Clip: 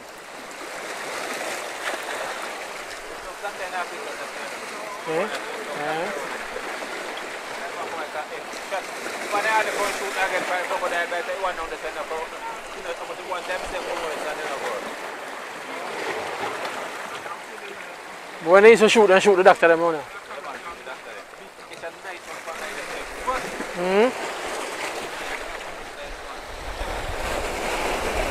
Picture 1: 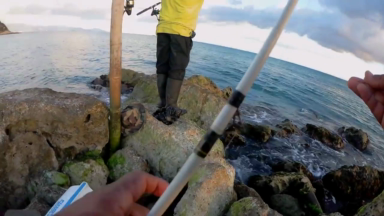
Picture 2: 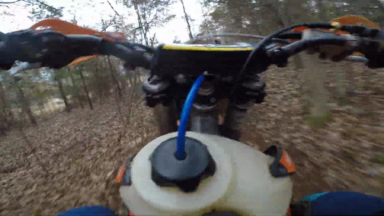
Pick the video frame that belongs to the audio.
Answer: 1